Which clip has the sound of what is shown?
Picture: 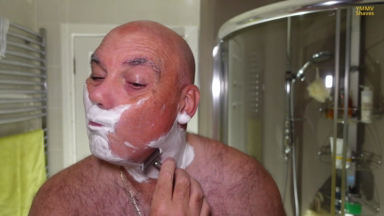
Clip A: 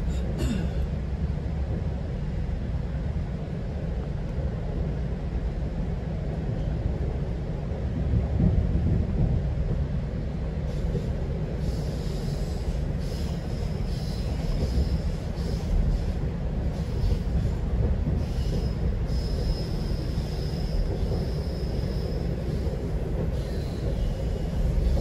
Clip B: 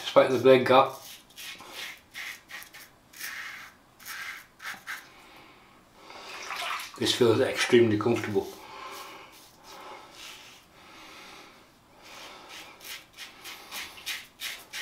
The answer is B